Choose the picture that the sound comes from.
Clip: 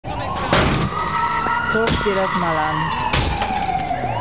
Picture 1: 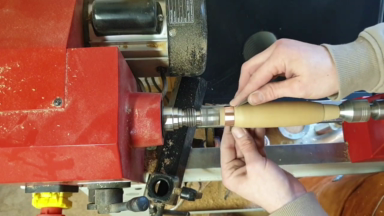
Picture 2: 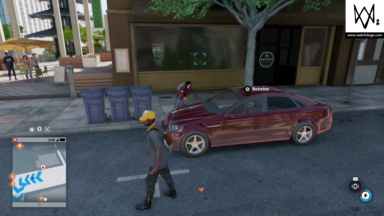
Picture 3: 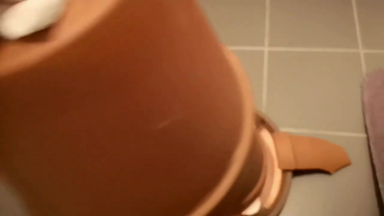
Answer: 2